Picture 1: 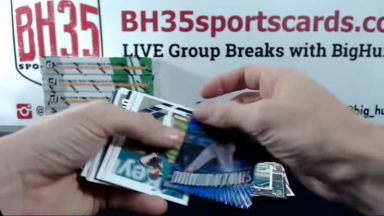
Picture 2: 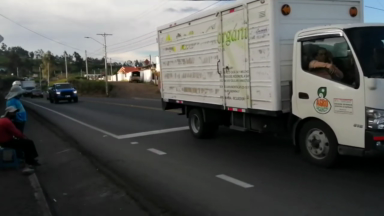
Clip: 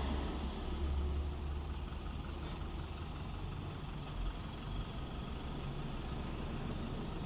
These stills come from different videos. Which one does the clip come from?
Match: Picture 2